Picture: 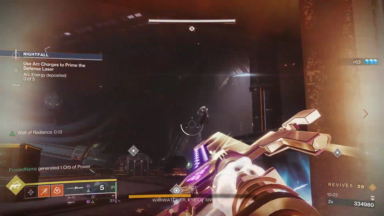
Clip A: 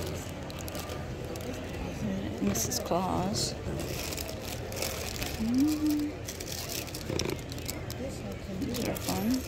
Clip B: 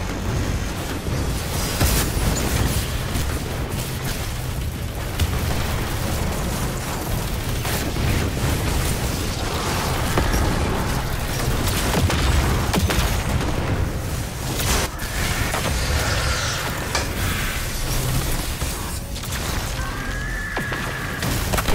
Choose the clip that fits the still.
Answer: B